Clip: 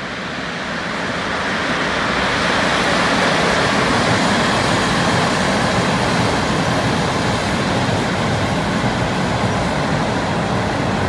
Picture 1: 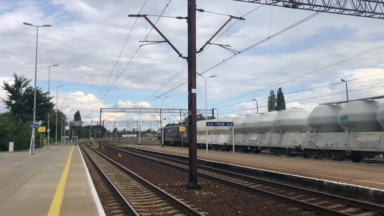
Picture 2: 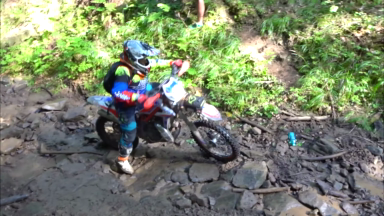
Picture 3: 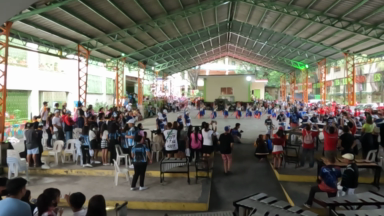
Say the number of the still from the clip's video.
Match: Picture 1